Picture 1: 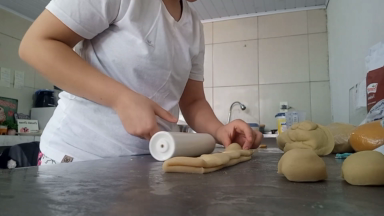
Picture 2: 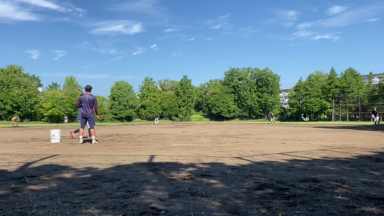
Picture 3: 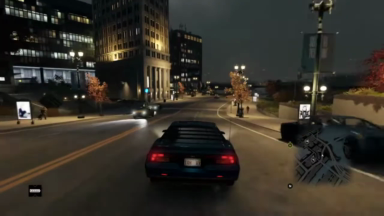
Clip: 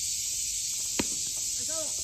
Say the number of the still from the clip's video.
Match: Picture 2